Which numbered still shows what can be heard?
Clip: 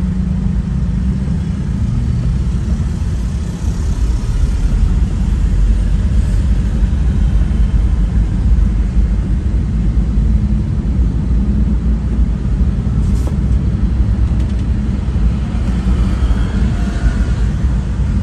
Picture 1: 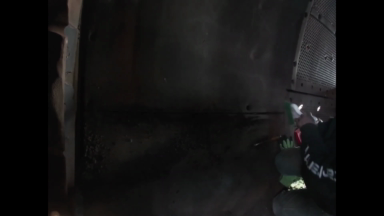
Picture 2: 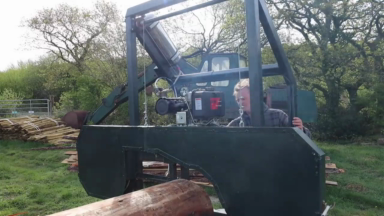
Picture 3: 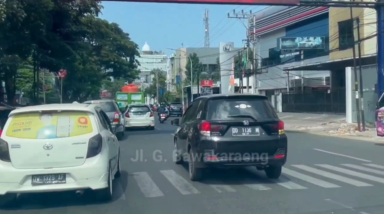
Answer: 3